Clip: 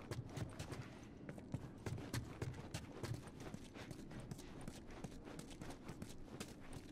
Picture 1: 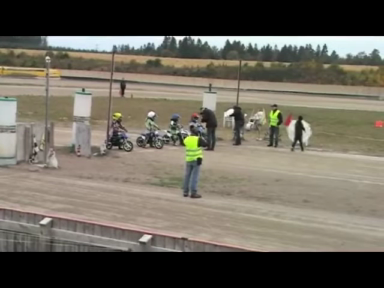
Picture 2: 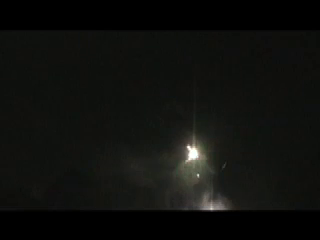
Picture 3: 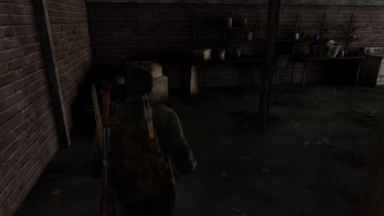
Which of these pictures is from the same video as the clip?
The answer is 3